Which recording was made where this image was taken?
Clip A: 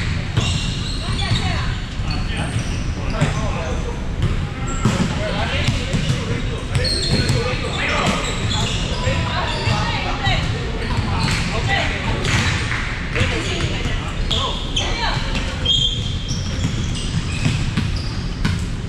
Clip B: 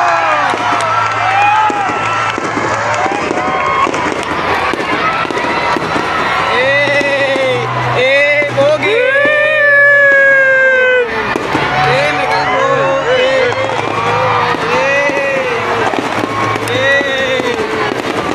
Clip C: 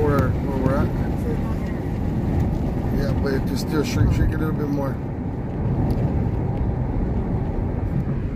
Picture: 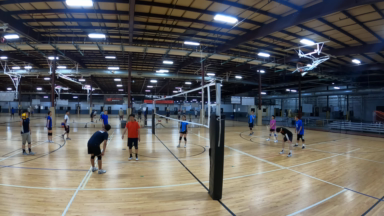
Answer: A